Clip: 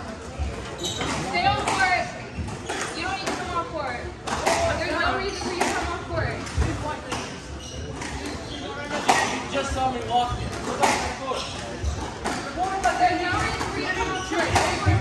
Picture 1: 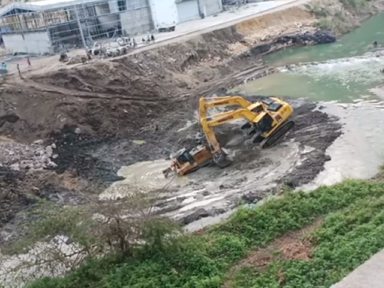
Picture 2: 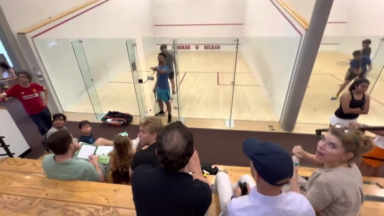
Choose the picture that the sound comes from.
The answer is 2